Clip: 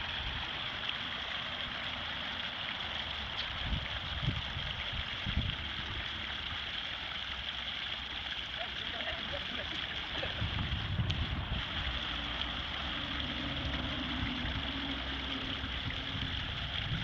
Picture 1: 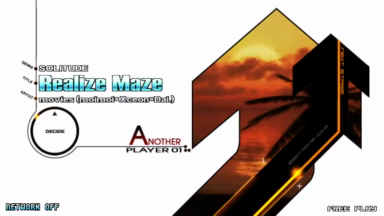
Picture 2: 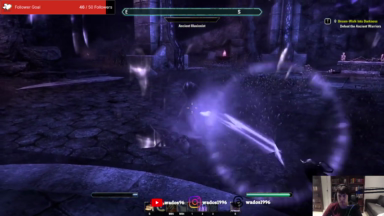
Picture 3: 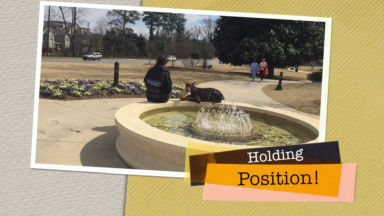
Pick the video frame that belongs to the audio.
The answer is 3